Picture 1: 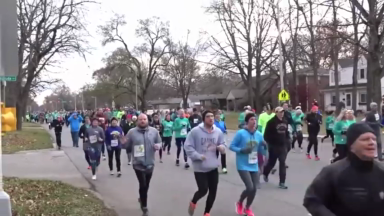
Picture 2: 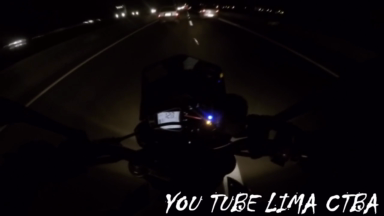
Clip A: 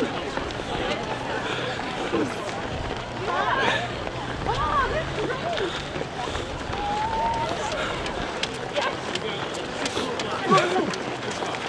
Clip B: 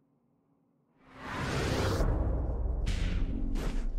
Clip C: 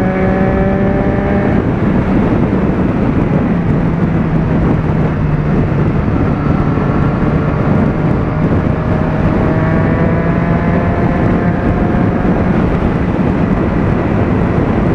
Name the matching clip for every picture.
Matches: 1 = A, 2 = C